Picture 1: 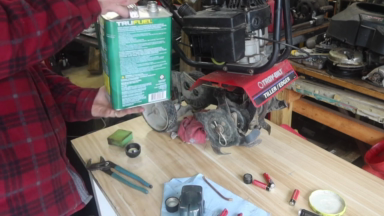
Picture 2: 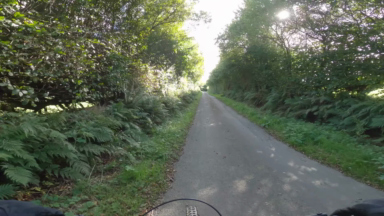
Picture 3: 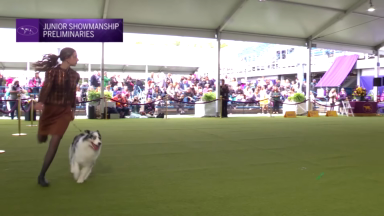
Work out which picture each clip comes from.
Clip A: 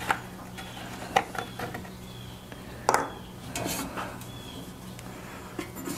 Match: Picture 1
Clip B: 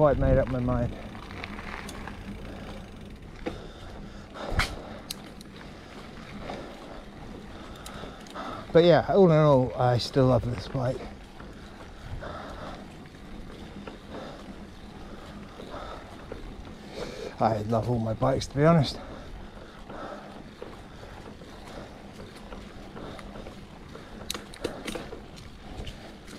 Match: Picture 2